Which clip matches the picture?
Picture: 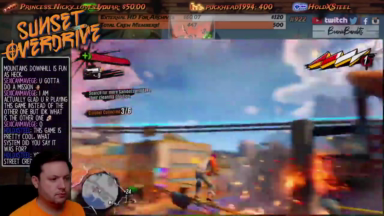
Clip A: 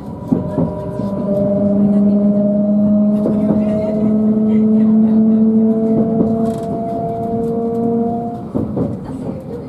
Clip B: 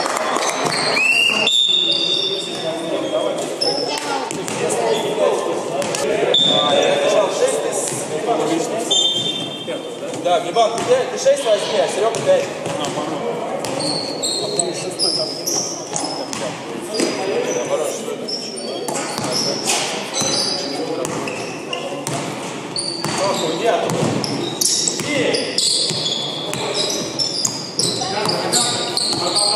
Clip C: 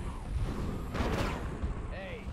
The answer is C